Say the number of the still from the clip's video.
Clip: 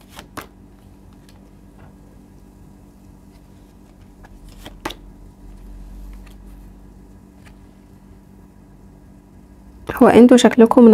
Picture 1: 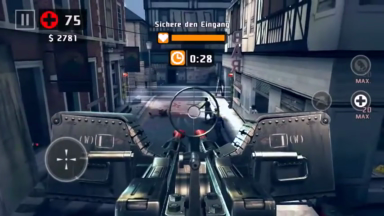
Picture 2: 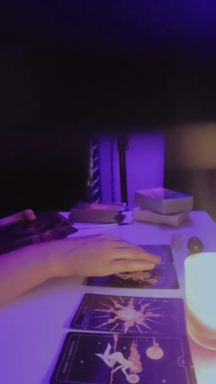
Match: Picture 2